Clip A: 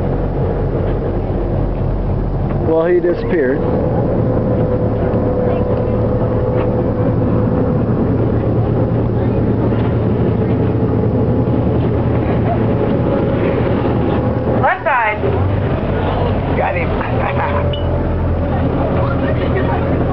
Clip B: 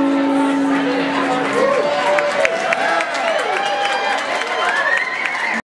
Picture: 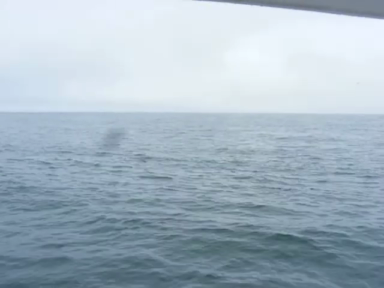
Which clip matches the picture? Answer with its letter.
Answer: A